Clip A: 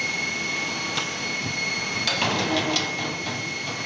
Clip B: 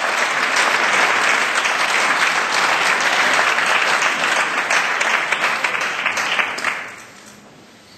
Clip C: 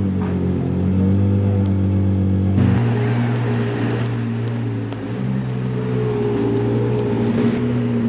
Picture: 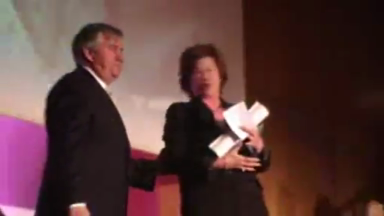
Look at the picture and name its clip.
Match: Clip B